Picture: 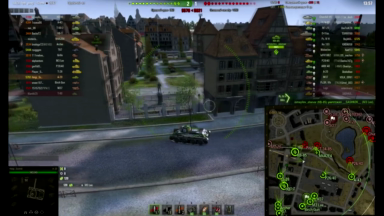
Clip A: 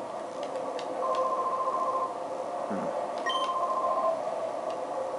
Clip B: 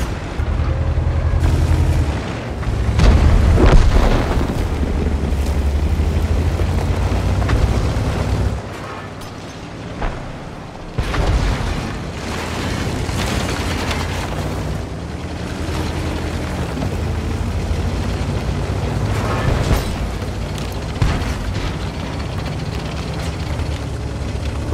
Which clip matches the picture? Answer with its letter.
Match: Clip B